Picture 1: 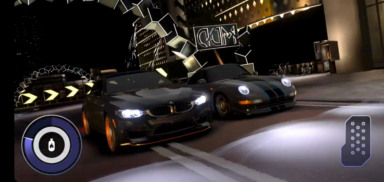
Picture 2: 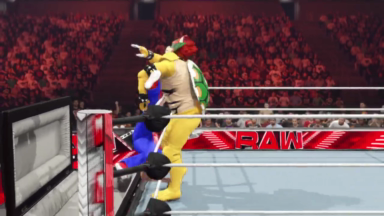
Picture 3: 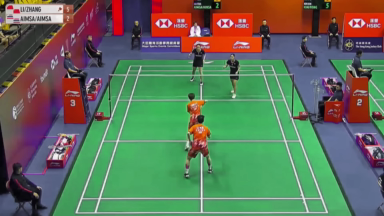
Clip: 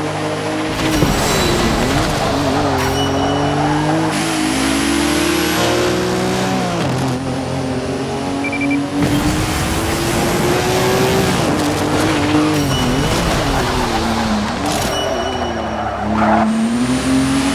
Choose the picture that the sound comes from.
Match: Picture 1